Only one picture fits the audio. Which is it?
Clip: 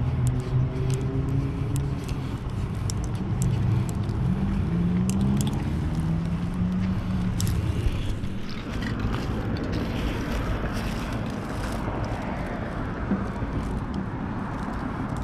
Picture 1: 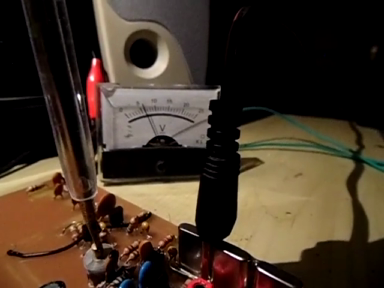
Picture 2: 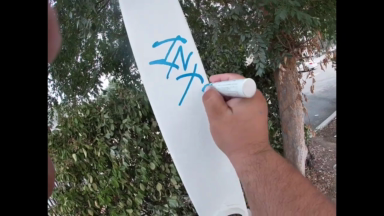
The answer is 2